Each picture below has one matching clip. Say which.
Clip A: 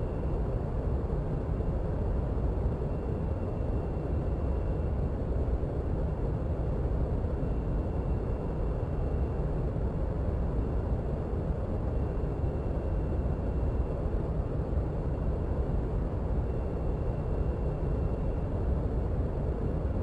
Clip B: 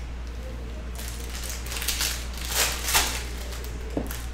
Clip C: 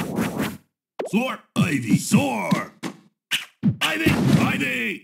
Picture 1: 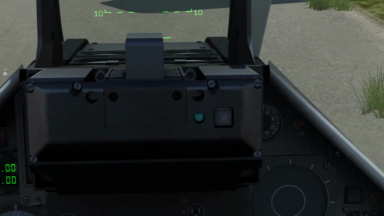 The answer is A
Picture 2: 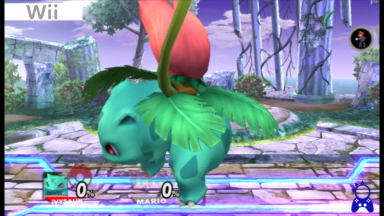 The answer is C